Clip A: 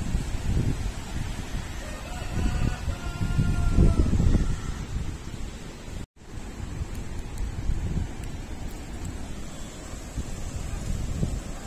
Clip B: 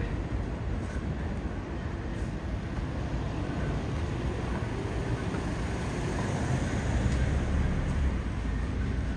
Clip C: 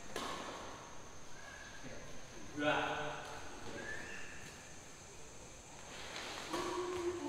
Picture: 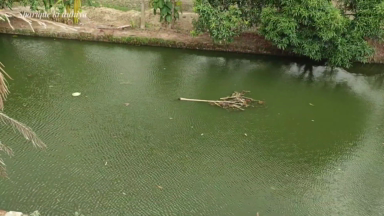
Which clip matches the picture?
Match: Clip A